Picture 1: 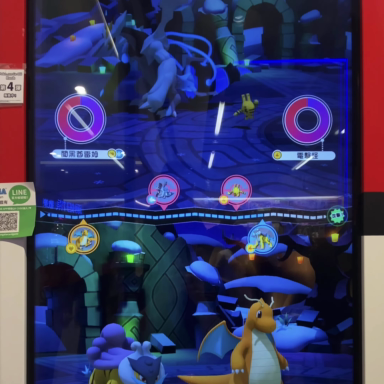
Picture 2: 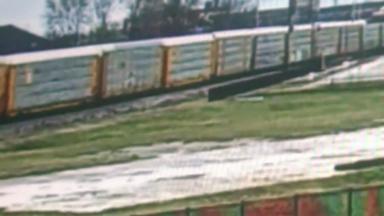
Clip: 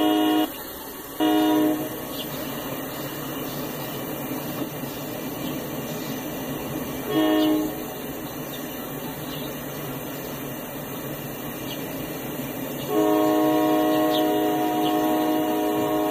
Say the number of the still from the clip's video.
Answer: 2